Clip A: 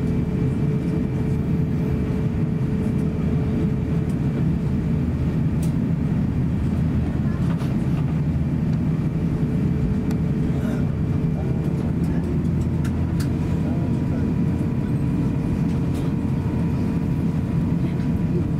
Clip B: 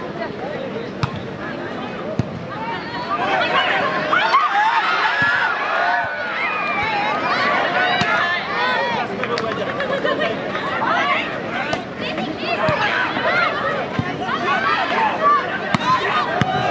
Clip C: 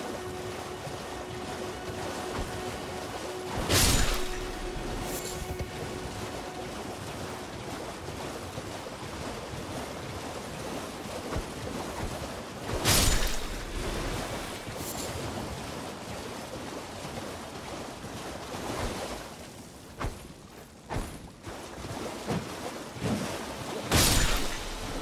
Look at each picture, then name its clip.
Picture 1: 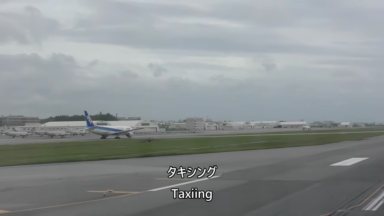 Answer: A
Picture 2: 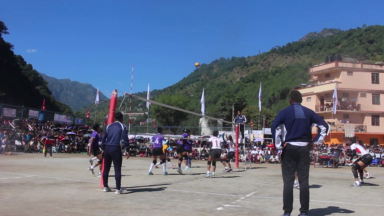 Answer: B